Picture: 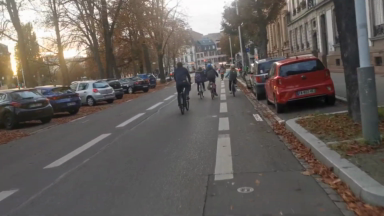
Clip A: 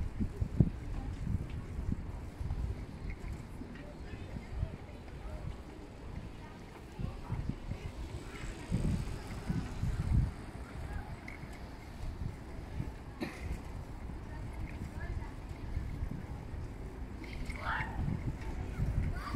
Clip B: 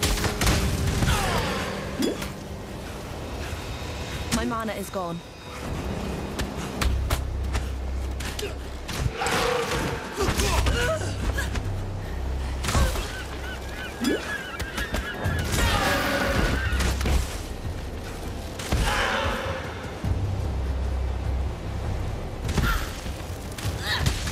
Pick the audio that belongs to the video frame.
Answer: A